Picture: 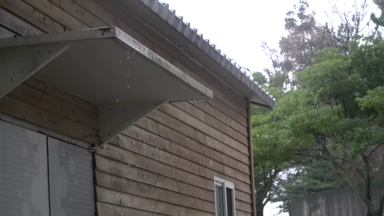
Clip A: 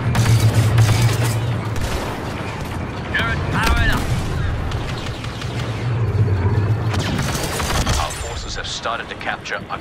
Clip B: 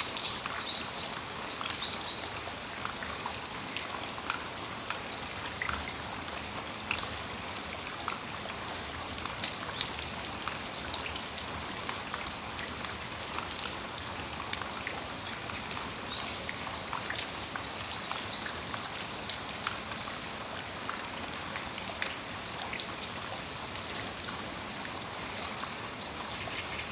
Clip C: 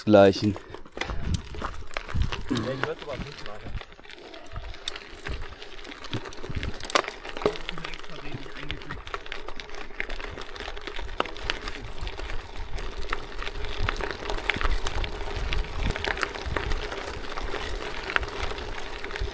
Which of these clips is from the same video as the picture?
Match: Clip B